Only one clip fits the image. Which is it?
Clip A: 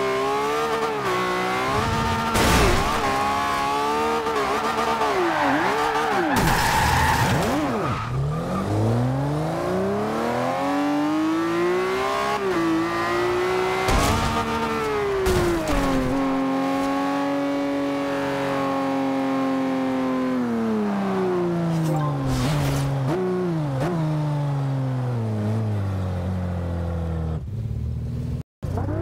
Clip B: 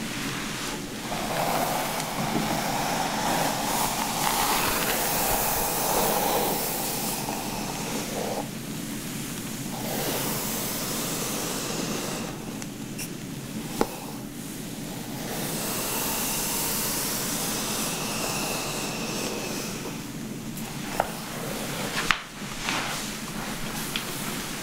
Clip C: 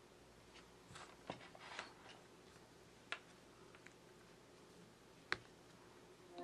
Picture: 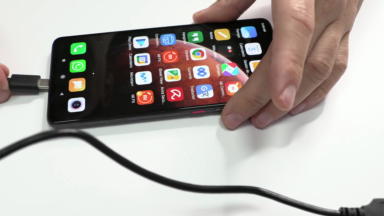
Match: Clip C